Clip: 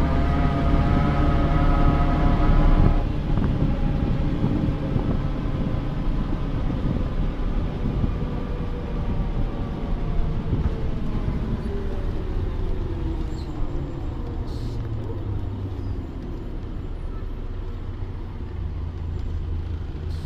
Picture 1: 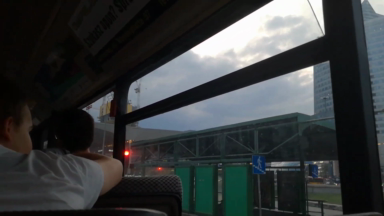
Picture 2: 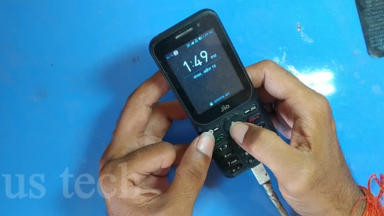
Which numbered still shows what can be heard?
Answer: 1